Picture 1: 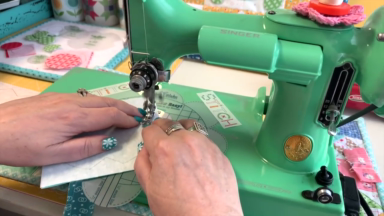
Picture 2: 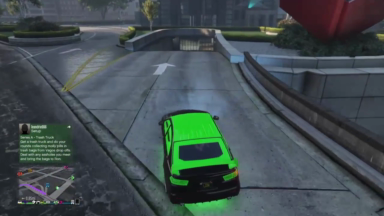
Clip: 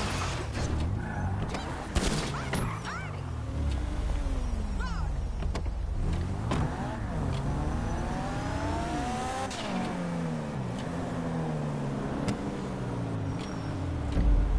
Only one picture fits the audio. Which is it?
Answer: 2